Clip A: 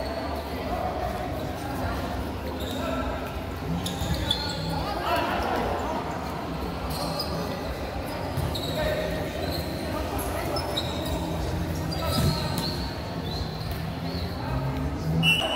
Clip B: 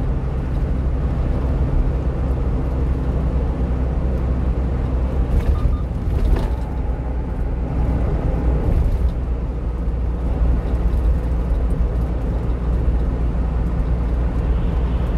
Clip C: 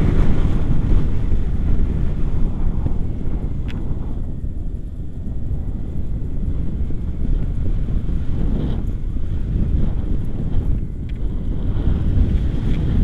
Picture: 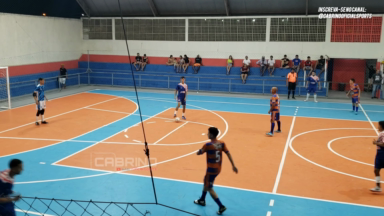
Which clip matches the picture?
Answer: A